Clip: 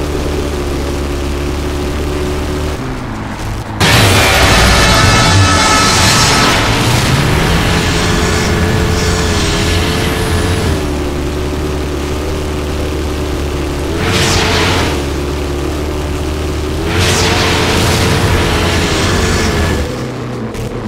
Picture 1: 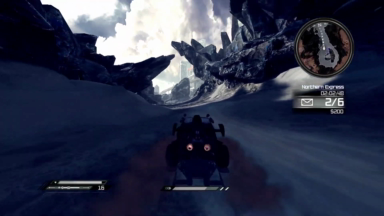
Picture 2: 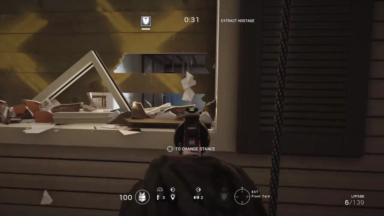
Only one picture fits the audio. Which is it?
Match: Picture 1